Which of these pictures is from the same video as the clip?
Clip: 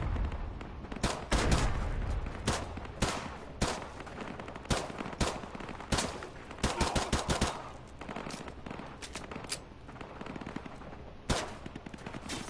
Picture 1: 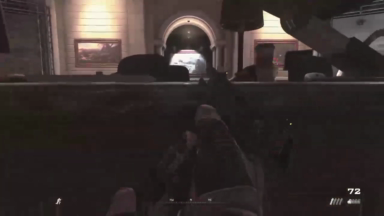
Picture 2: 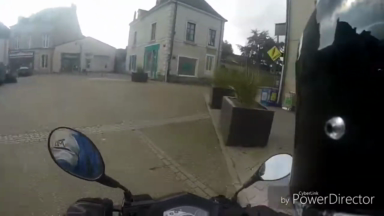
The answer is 1